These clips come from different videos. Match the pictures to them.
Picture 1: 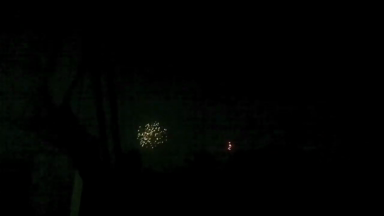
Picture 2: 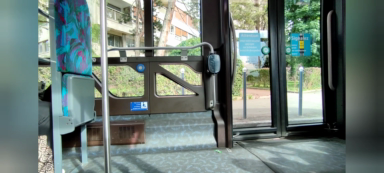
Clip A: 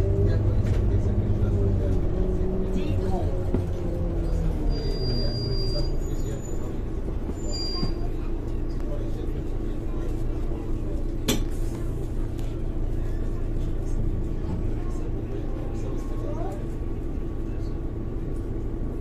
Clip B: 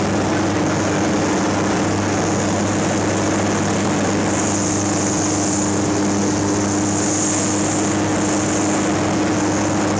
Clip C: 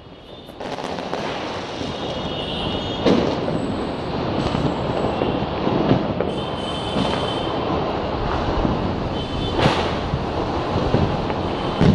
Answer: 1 C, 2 A